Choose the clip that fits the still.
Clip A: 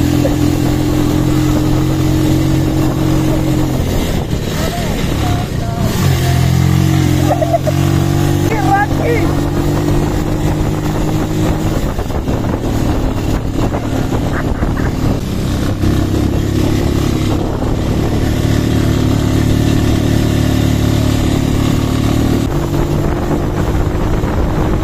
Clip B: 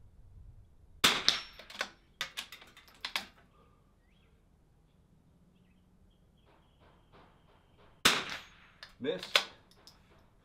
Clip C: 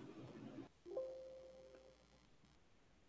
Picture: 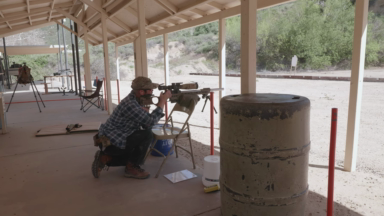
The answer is B